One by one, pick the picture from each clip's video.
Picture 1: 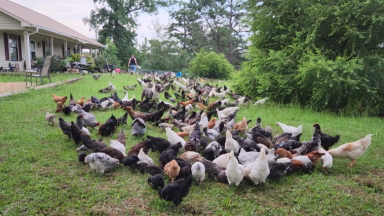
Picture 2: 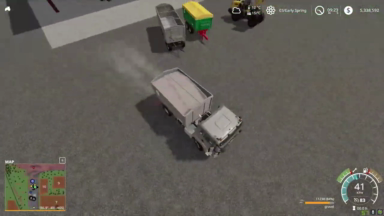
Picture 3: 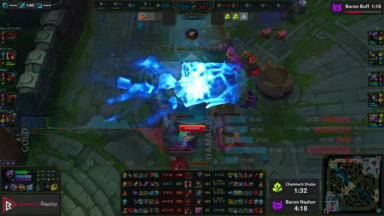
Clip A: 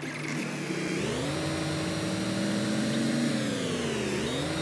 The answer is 2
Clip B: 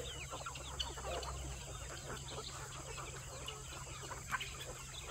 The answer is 1